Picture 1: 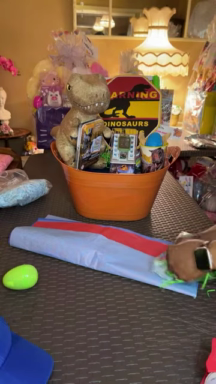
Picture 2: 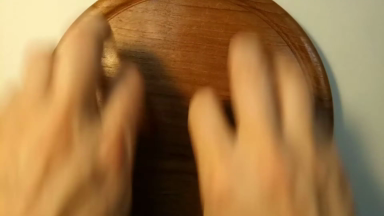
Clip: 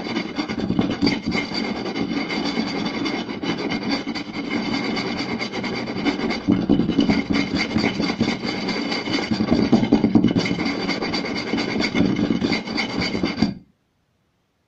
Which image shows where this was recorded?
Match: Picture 2